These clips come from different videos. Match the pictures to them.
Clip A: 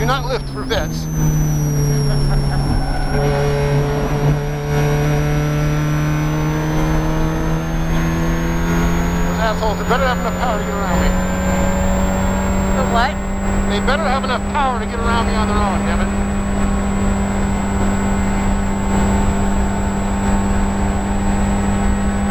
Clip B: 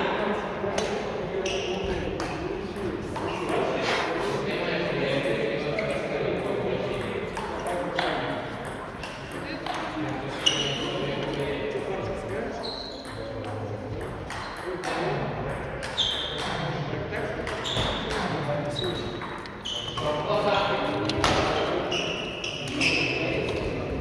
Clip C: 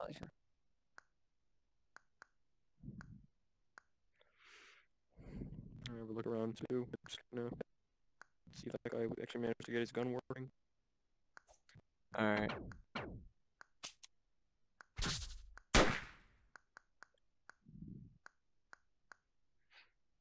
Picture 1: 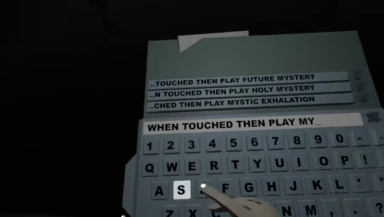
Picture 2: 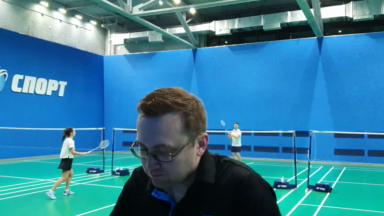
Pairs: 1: C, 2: B